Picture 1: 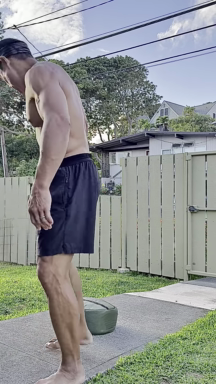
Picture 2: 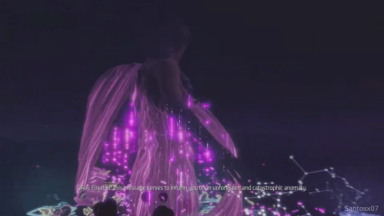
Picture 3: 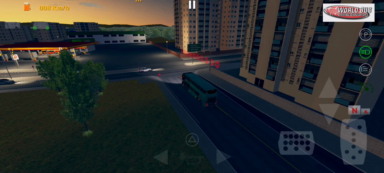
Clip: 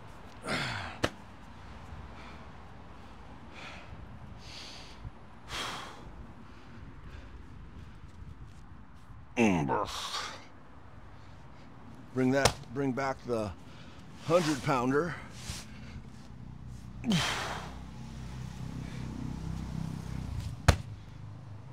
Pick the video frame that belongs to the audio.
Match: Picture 1